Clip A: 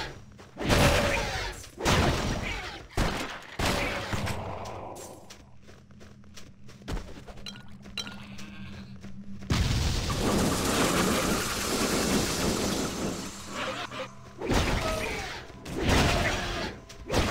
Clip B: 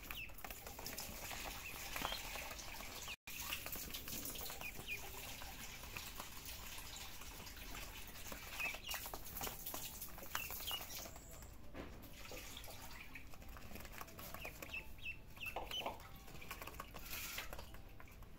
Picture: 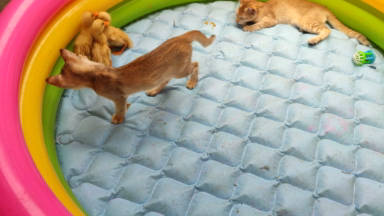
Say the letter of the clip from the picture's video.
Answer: B